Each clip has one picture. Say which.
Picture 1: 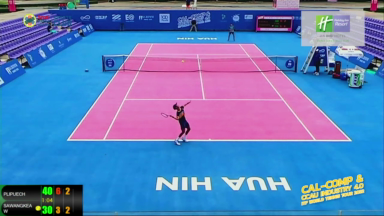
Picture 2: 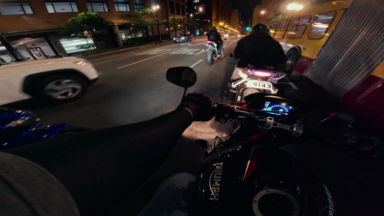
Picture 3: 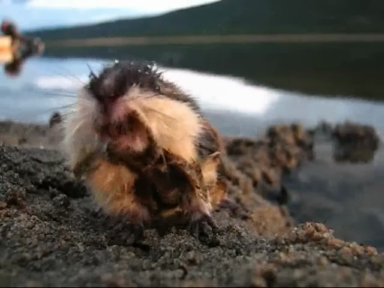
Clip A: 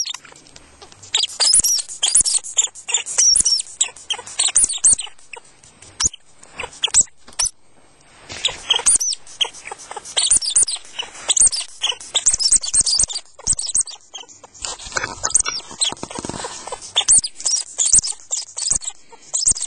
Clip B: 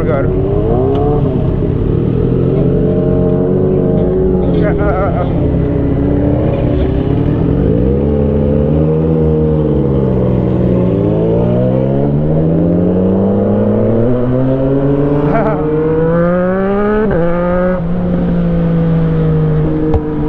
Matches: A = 3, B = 2